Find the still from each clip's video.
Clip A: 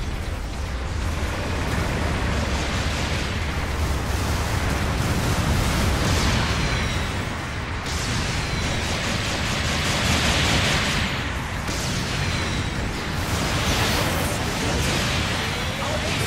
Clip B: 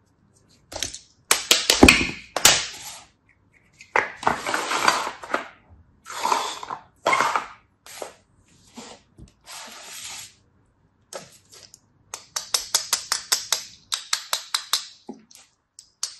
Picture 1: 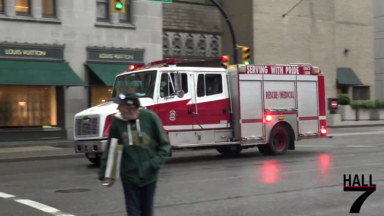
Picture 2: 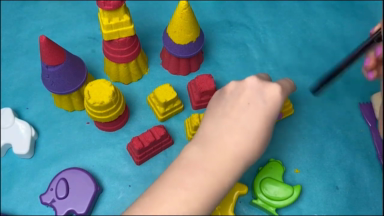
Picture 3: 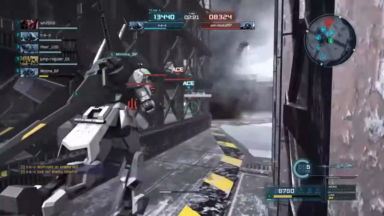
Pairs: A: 3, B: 2